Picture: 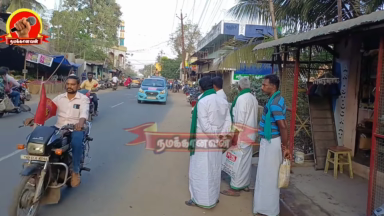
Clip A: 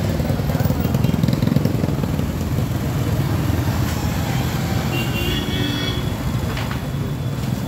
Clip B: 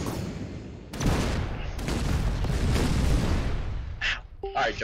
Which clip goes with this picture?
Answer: A